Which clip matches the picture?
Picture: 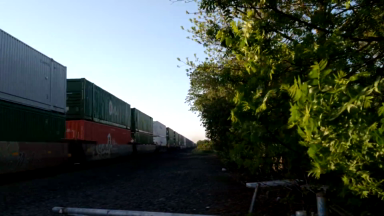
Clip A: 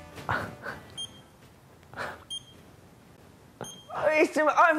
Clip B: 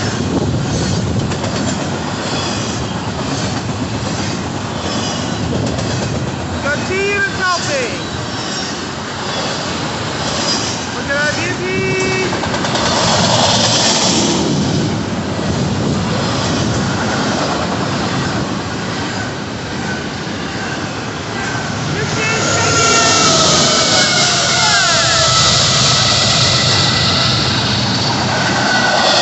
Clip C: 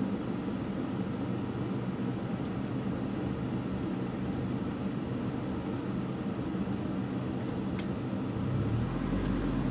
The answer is B